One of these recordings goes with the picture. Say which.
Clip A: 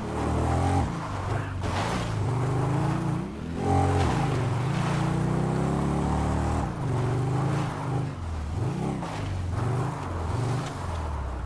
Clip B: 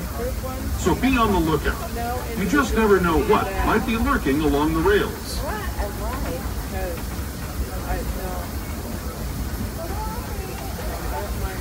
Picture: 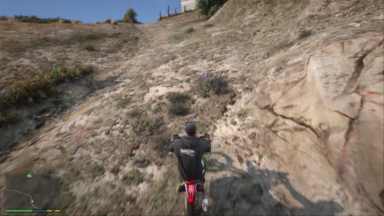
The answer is A